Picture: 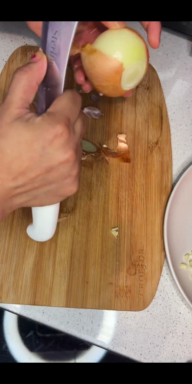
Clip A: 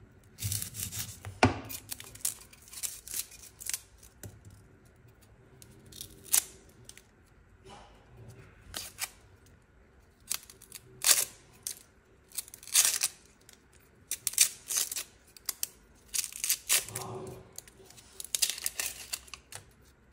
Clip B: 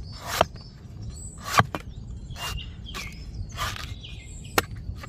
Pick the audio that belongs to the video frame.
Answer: A